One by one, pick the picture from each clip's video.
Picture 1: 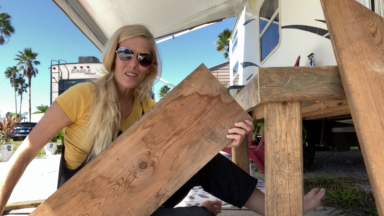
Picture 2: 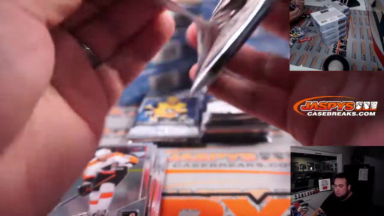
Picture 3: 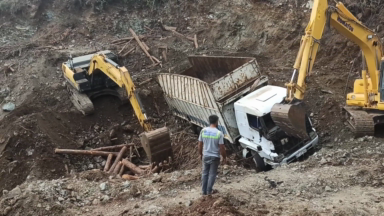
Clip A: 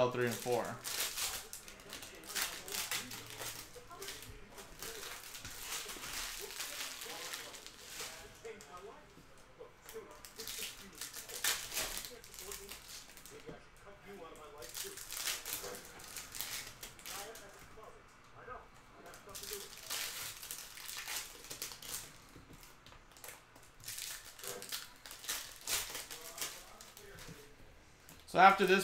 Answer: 2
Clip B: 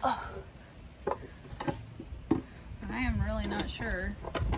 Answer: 1